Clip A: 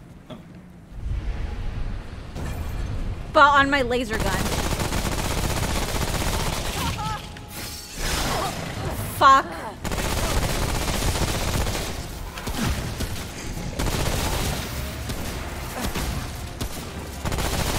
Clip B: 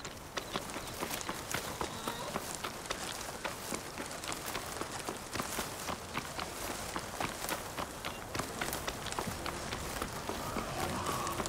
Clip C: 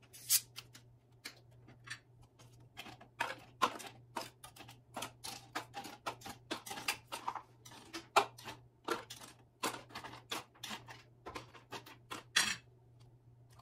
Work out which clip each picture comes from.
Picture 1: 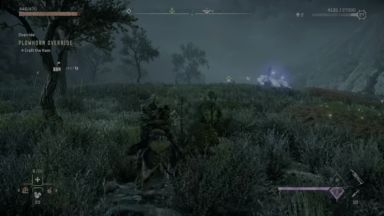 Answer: B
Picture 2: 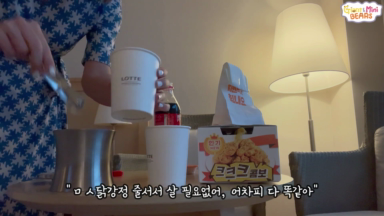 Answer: C